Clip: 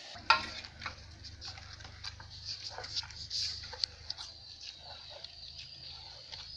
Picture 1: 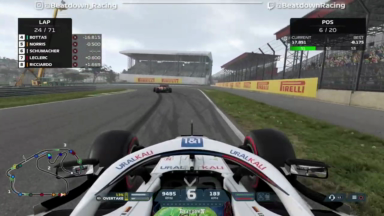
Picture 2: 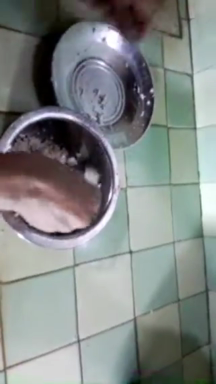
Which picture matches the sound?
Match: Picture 2